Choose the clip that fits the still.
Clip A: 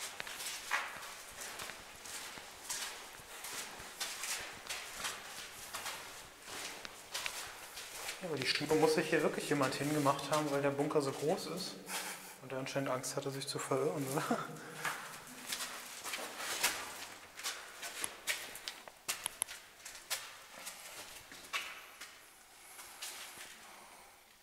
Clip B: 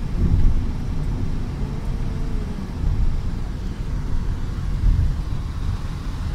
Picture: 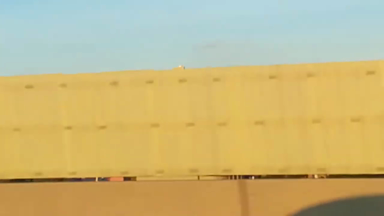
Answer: B